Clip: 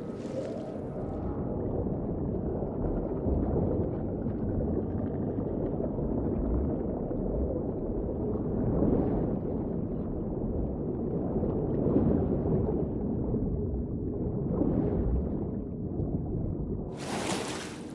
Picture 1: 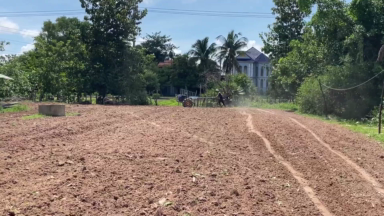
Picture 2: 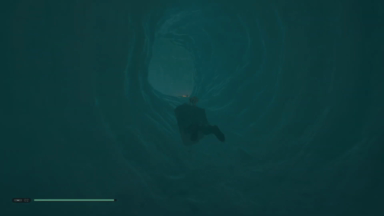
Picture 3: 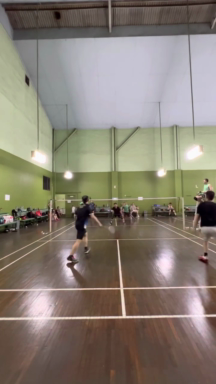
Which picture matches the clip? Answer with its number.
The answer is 2